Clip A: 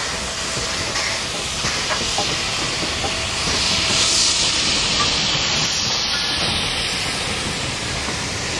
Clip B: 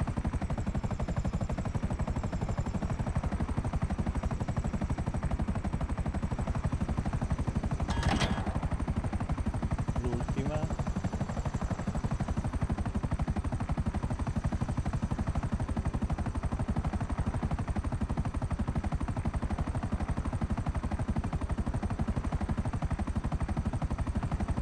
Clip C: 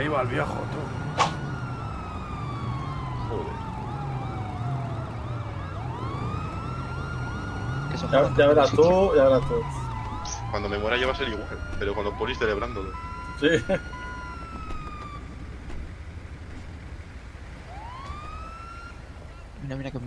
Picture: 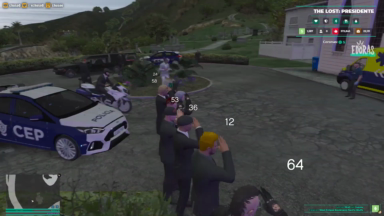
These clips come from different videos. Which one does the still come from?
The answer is C